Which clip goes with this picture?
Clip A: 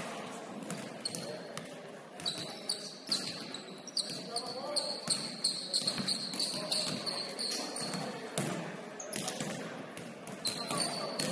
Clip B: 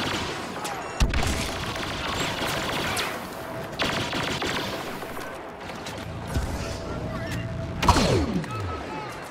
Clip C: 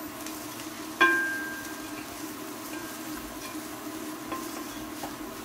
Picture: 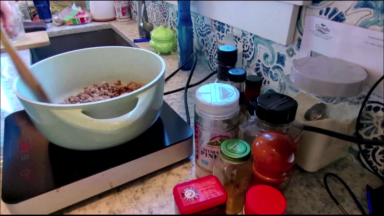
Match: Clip C